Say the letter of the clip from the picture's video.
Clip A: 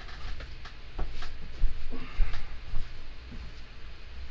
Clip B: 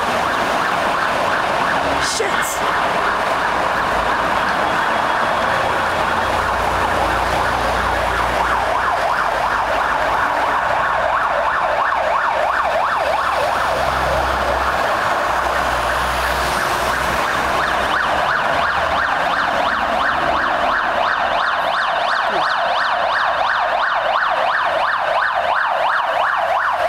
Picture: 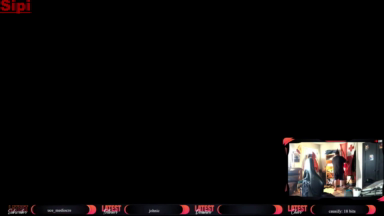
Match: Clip A